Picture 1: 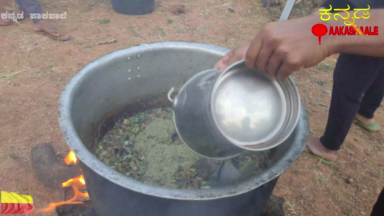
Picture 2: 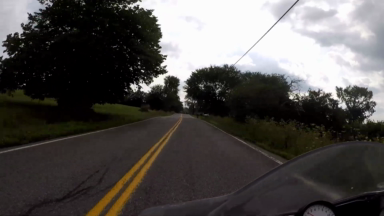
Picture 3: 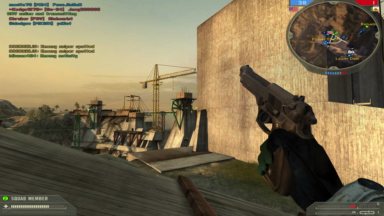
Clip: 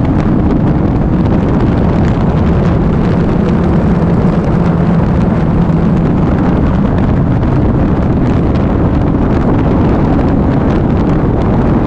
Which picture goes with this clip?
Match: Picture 2